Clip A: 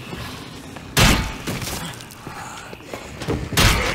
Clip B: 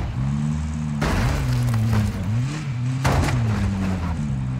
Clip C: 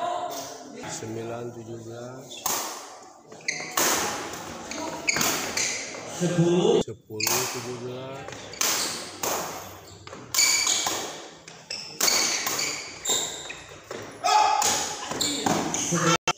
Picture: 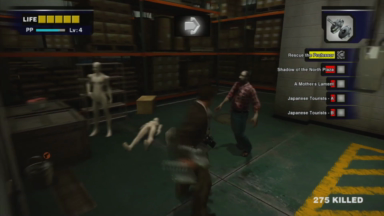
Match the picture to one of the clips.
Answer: A